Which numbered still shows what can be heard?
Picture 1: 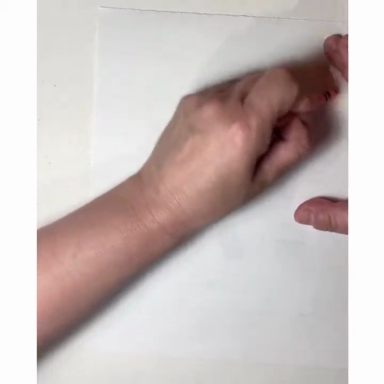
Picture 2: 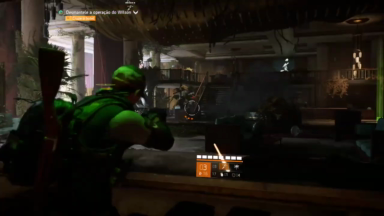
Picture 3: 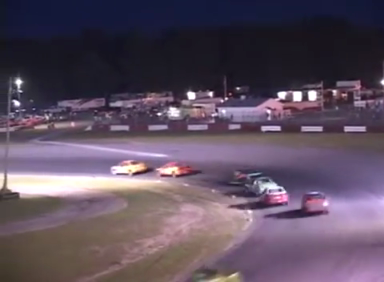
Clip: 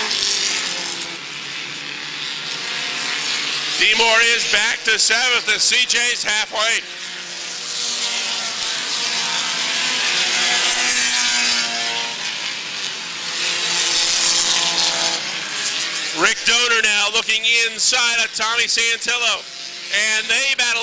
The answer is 3